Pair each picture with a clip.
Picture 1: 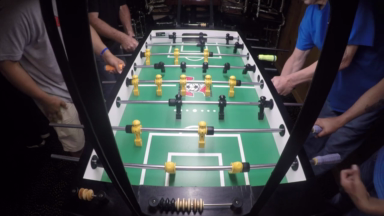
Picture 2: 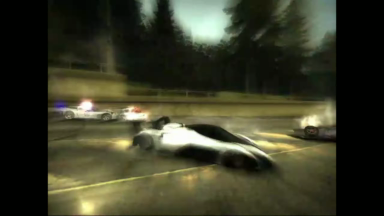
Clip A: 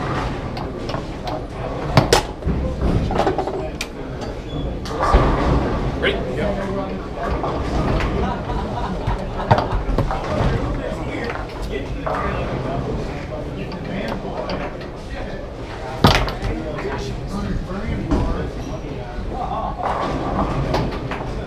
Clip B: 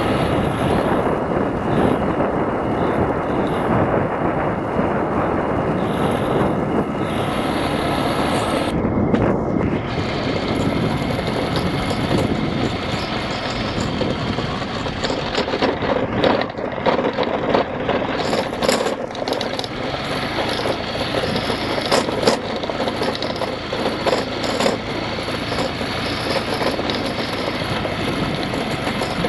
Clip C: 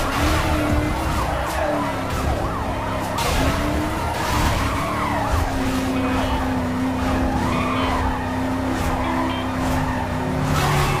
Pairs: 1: A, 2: C